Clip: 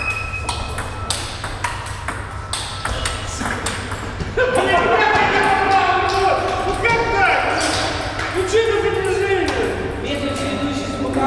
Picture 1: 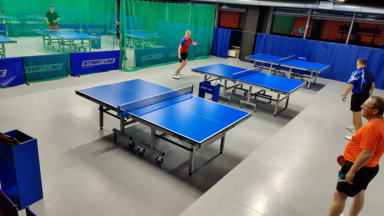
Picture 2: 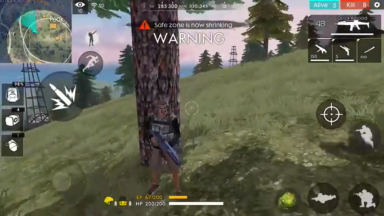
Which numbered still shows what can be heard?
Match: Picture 1